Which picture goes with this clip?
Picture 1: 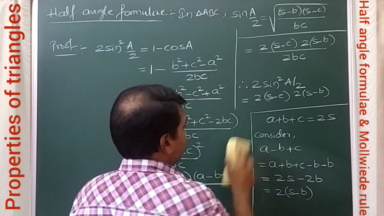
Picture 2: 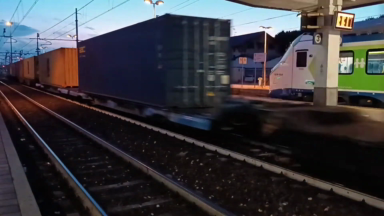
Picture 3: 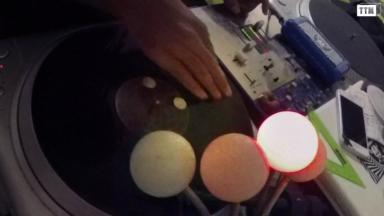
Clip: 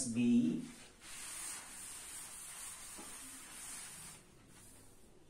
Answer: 1